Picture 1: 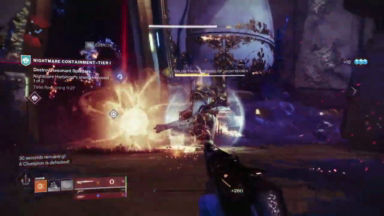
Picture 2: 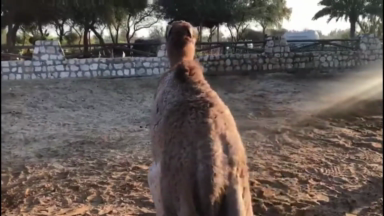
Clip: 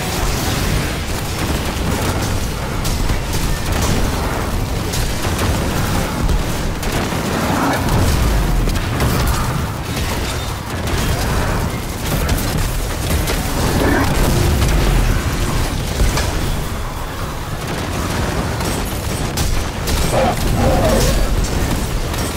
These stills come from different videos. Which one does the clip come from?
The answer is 1